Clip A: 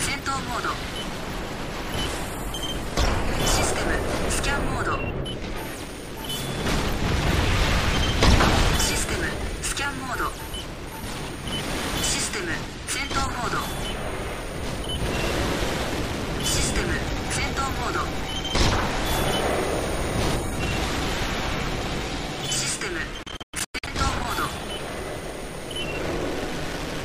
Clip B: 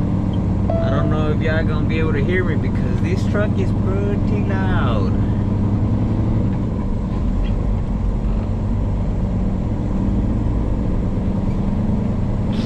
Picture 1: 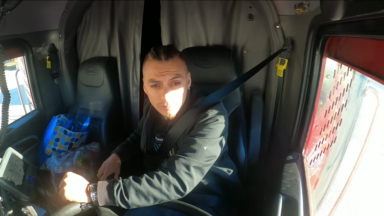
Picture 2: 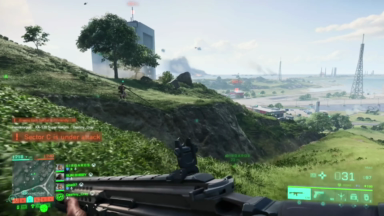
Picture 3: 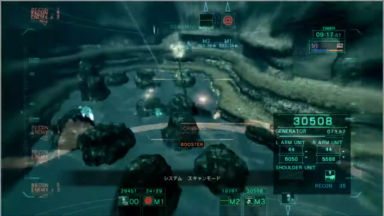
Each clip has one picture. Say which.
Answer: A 3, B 1